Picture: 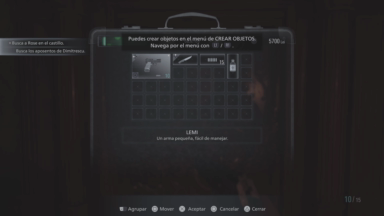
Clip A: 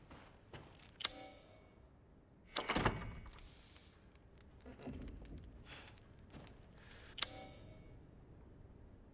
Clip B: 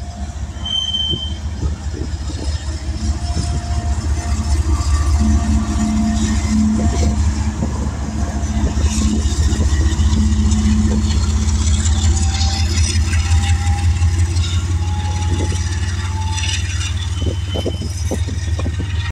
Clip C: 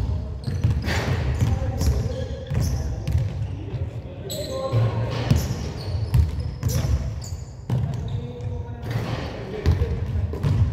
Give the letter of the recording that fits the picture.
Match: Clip A